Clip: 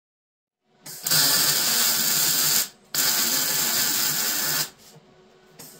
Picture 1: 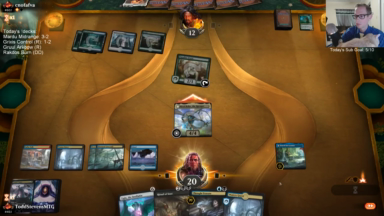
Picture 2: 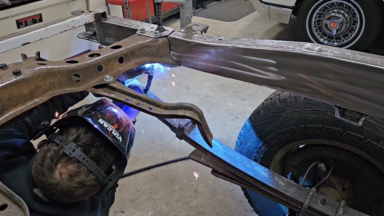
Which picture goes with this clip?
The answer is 2